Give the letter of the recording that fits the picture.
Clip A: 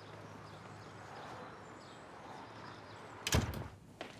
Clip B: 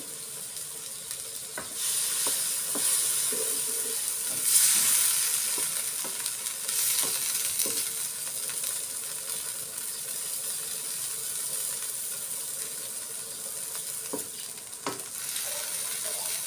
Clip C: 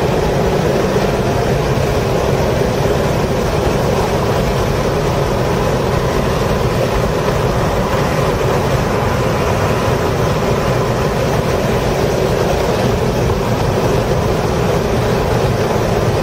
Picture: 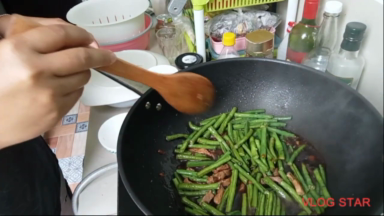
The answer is B